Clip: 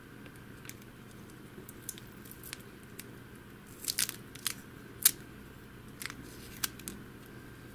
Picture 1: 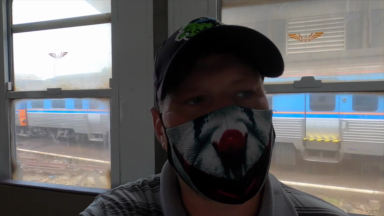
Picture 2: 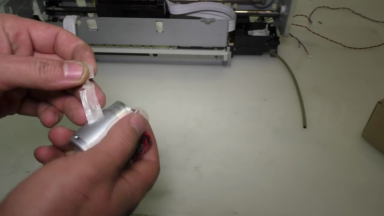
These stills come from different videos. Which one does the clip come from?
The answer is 2